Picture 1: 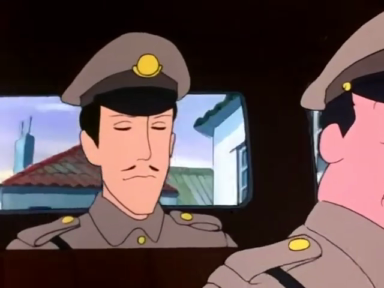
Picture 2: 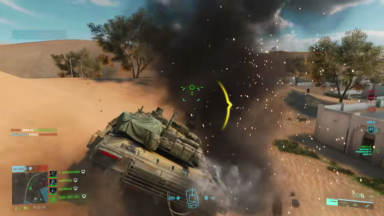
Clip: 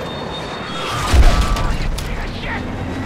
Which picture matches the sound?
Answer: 2